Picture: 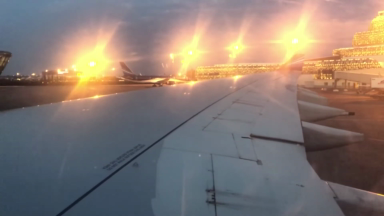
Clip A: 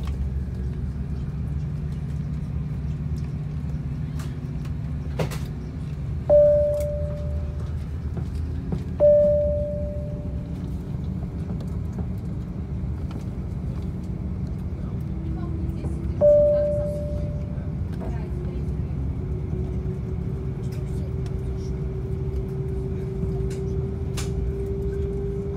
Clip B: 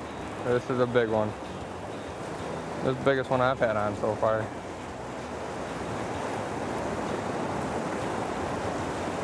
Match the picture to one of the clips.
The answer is A